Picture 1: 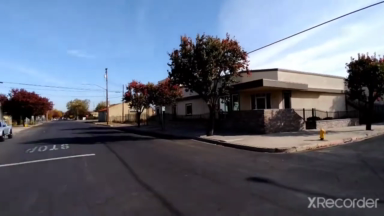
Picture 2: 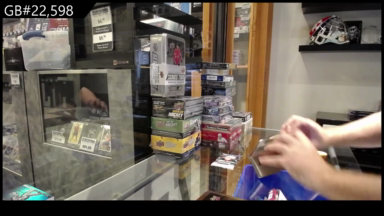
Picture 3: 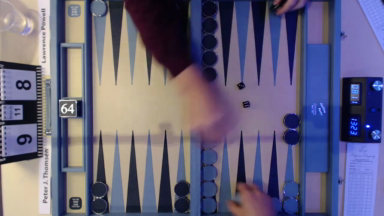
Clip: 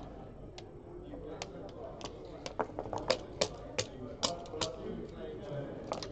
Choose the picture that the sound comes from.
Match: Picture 3